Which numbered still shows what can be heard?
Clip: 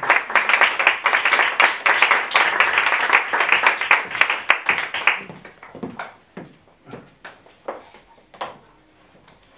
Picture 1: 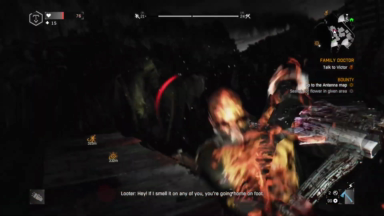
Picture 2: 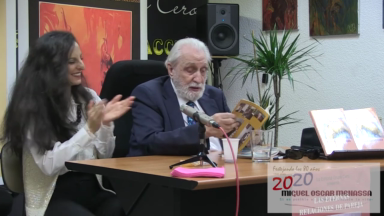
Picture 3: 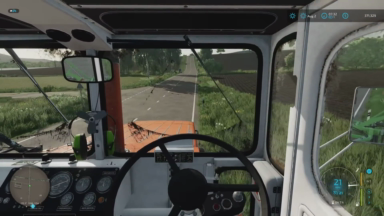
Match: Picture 2